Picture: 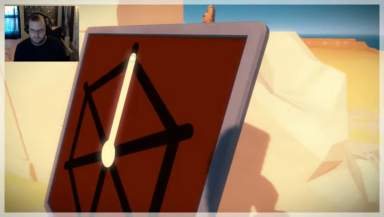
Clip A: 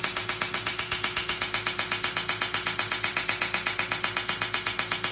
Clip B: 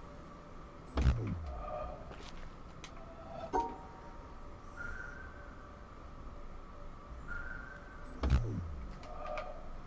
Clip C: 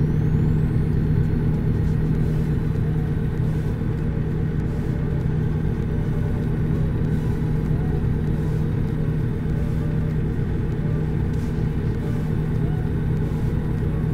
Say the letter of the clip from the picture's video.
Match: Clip B